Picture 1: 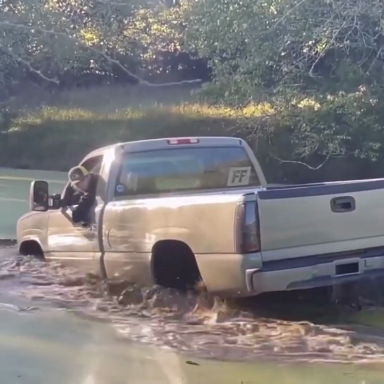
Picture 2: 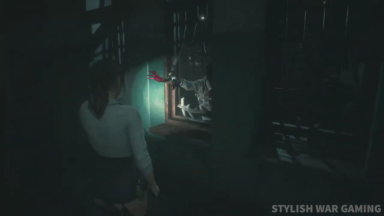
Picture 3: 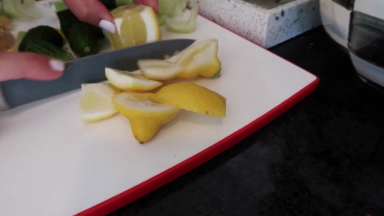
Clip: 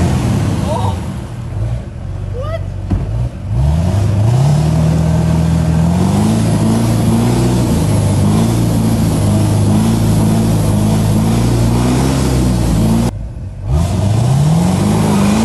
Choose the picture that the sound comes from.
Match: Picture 1